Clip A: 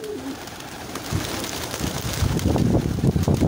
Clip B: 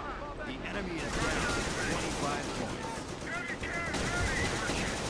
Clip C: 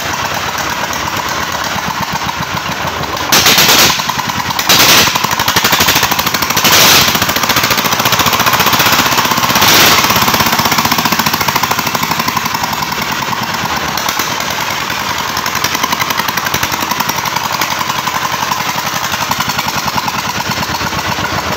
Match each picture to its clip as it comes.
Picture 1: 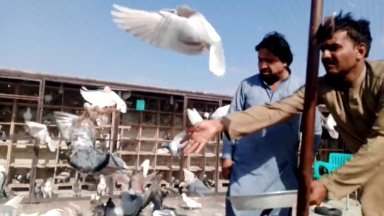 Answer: A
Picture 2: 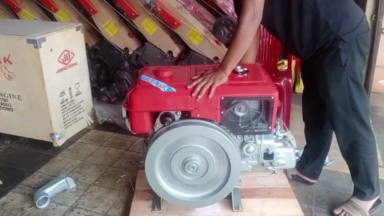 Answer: C